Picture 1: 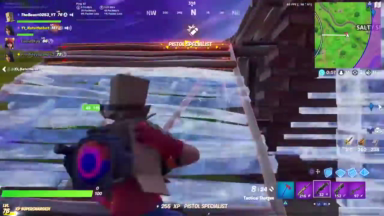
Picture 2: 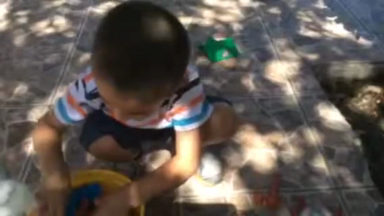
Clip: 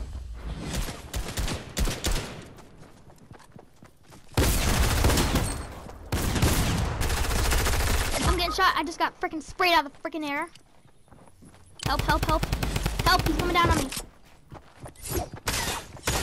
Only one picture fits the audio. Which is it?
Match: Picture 1